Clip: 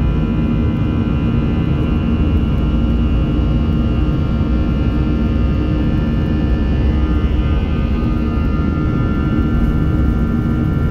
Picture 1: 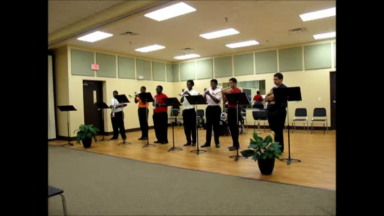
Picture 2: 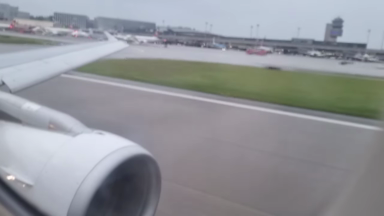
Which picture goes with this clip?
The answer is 2